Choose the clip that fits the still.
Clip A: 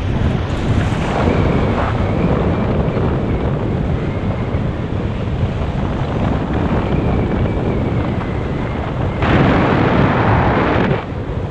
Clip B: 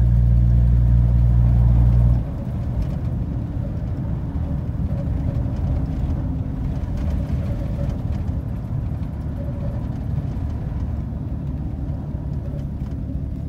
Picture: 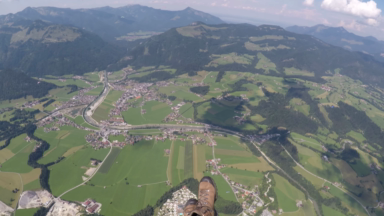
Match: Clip A